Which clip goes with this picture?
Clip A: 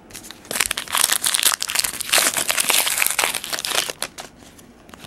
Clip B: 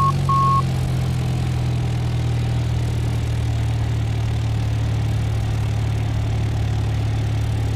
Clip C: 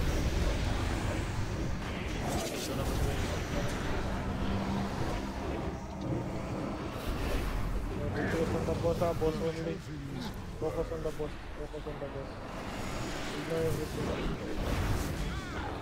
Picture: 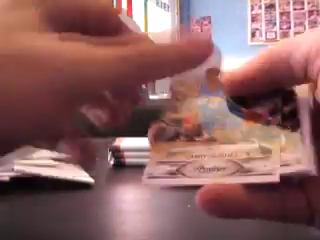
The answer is A